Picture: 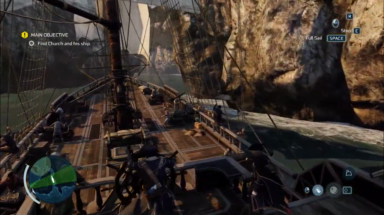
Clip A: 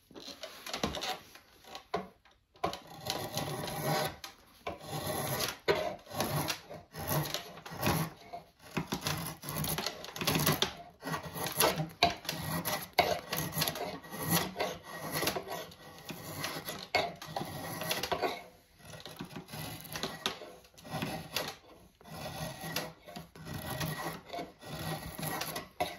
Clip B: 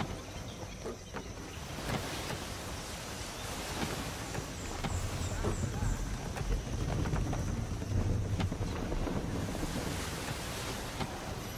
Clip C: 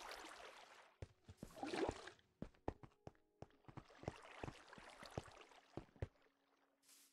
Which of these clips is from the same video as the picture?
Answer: B